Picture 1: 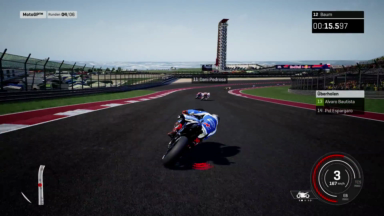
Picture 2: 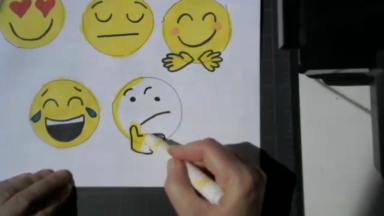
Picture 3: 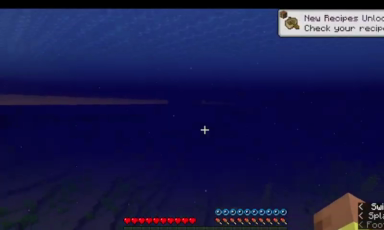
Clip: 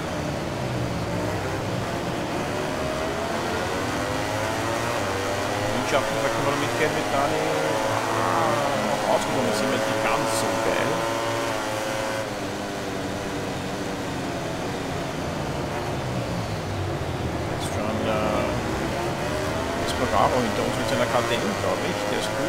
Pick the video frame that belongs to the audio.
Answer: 1